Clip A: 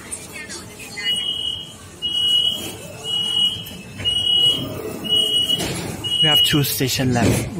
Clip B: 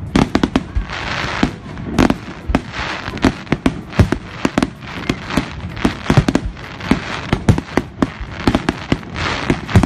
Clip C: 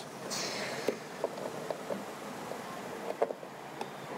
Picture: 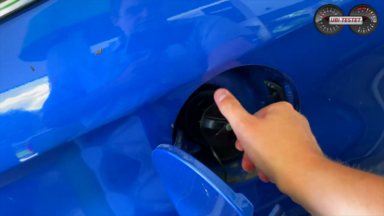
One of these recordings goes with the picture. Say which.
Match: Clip C